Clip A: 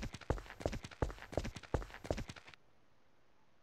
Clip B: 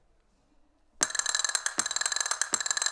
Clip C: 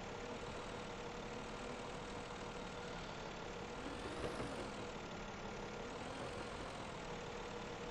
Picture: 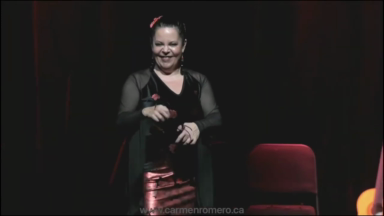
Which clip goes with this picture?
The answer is B